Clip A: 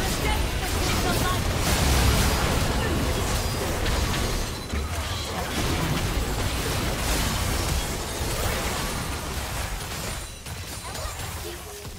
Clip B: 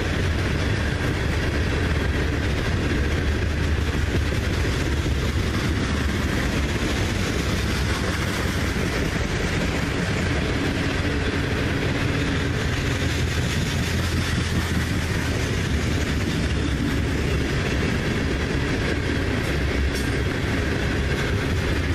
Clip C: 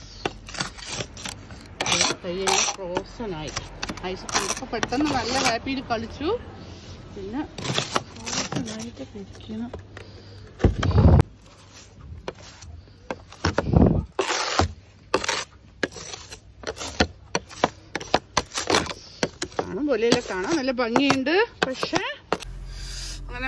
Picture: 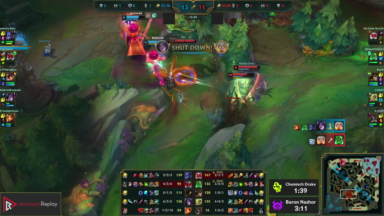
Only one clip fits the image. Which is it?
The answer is A